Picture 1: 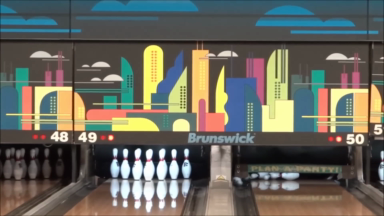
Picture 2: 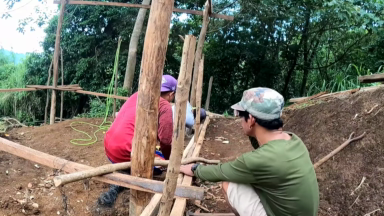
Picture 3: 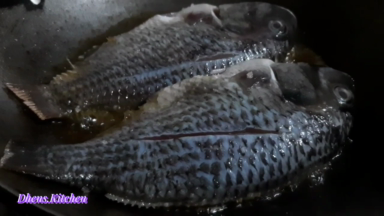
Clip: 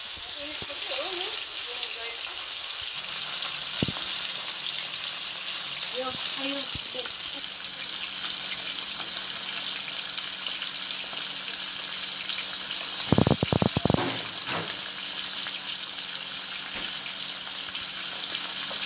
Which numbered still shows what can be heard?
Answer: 3